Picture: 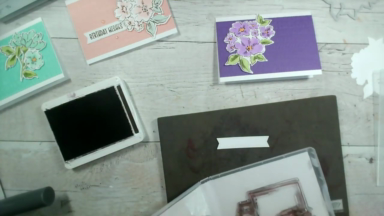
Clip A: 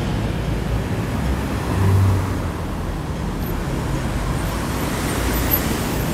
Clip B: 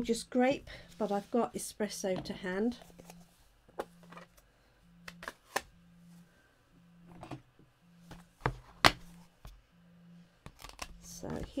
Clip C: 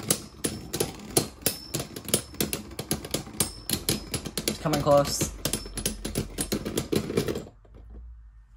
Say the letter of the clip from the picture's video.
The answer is B